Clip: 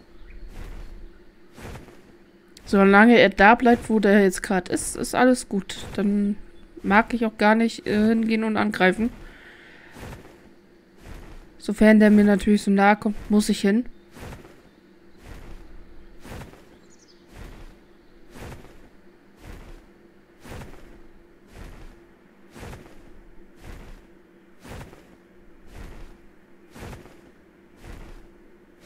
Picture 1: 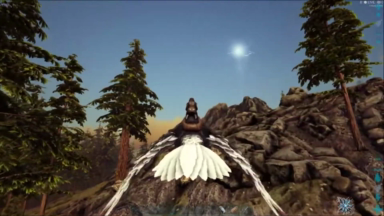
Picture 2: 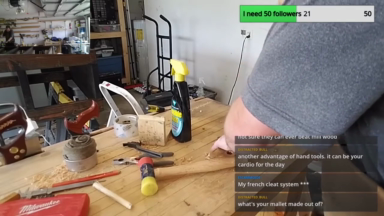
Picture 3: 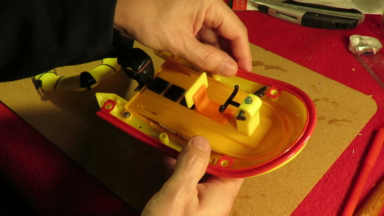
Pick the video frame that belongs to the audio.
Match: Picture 1